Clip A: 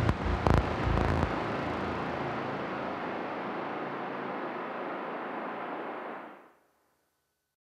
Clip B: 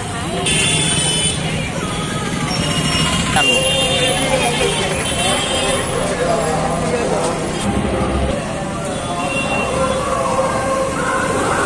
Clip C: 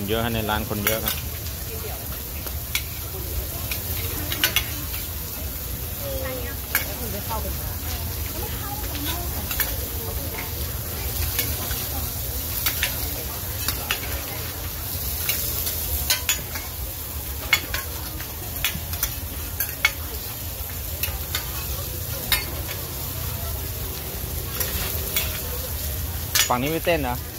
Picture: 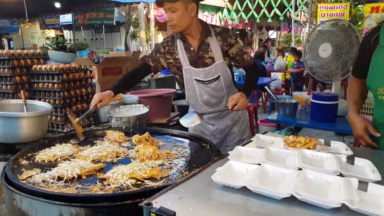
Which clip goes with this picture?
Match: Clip C